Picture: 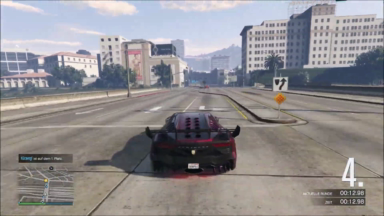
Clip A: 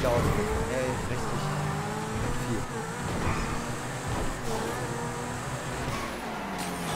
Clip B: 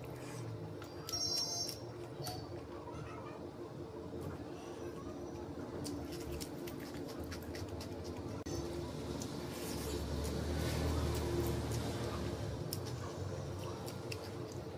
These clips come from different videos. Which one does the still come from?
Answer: A